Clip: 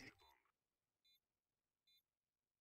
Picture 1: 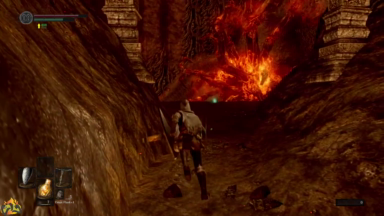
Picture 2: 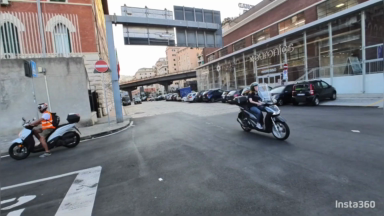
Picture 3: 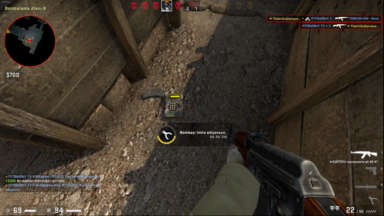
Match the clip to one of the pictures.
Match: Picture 3